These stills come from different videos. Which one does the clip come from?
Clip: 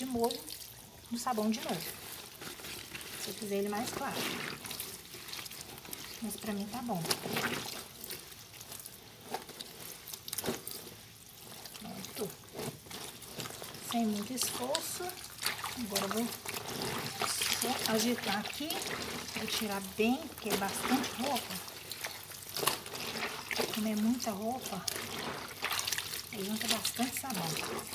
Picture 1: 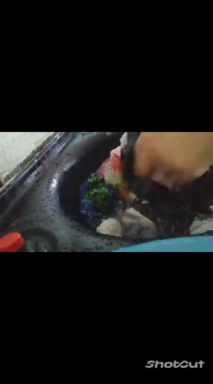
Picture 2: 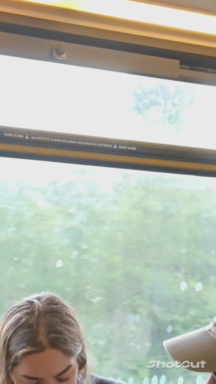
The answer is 1